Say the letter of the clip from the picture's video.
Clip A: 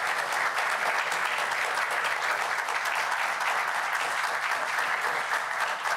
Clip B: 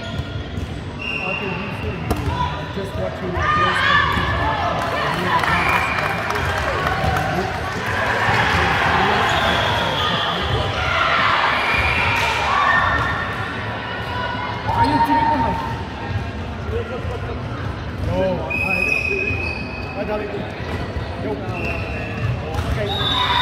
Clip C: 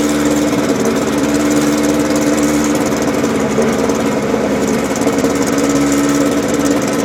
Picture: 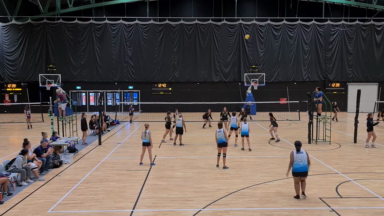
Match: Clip B